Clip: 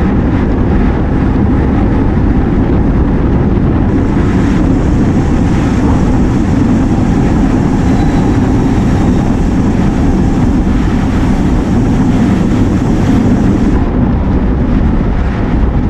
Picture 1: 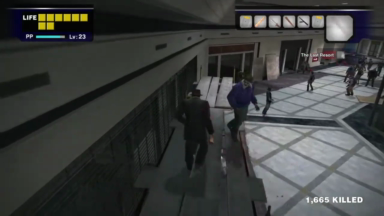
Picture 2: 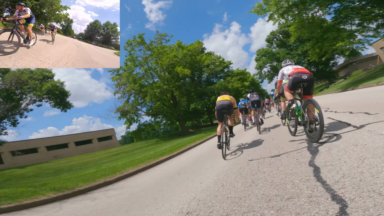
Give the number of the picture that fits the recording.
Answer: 2